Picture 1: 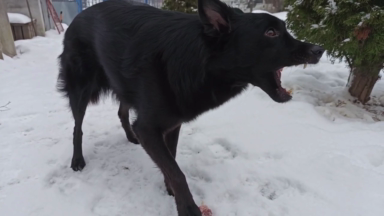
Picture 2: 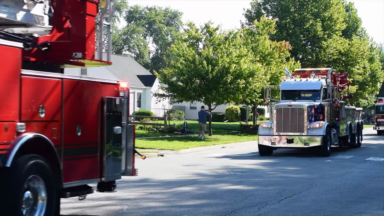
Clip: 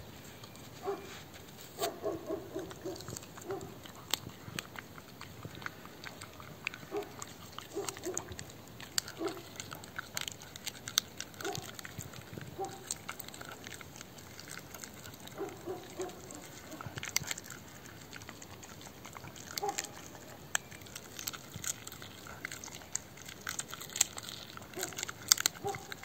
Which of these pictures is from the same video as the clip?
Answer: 1